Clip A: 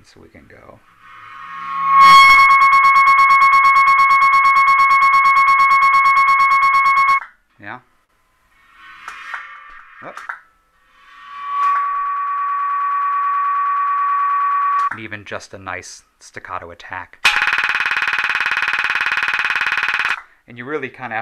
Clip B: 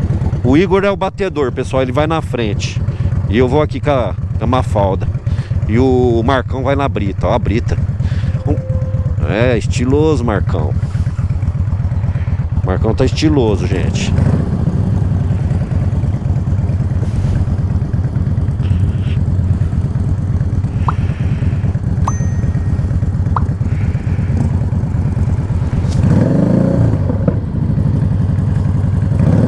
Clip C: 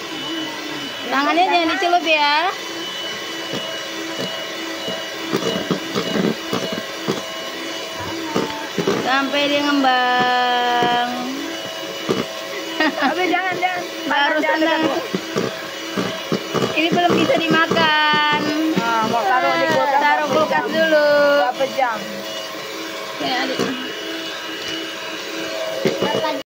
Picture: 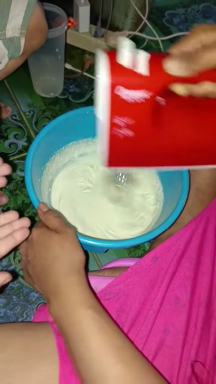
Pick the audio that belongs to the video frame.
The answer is C